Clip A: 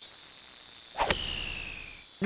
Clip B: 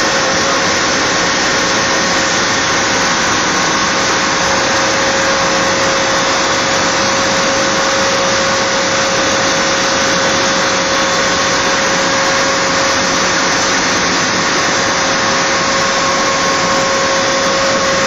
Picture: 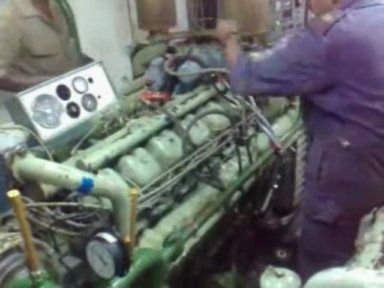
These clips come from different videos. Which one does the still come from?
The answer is B